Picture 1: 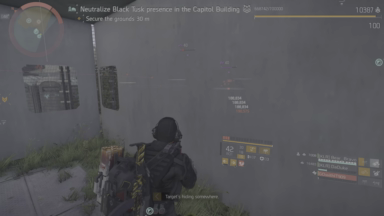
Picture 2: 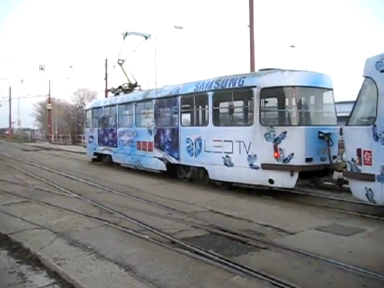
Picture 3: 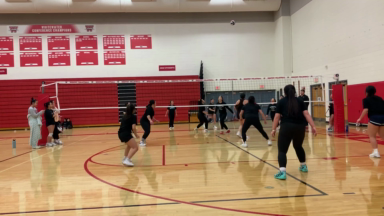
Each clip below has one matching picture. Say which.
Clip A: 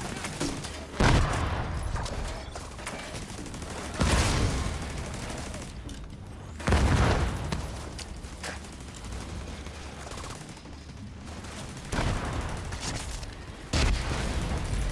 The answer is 1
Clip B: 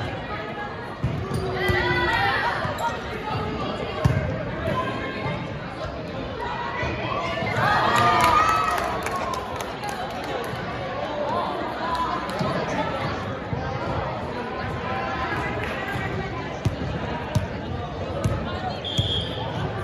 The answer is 3